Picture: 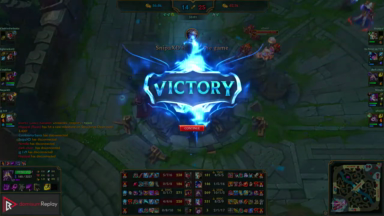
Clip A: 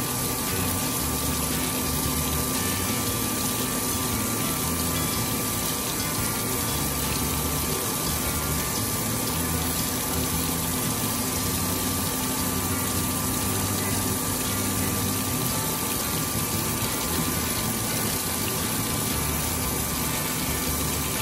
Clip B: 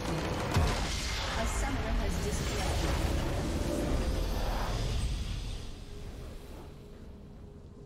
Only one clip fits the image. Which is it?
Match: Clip B